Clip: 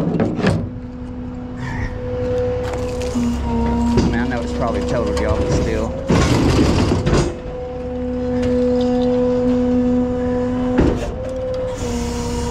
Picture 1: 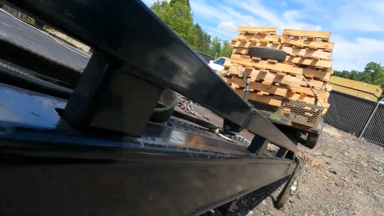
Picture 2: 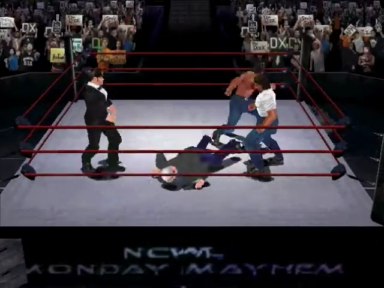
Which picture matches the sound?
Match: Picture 1